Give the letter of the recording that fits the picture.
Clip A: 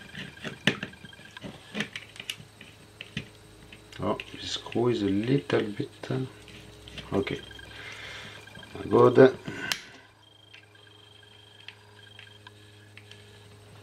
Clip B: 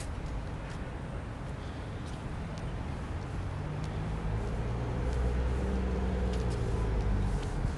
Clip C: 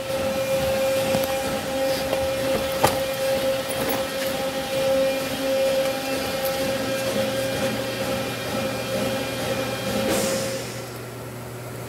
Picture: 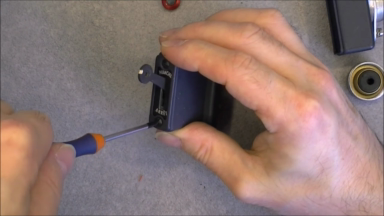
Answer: A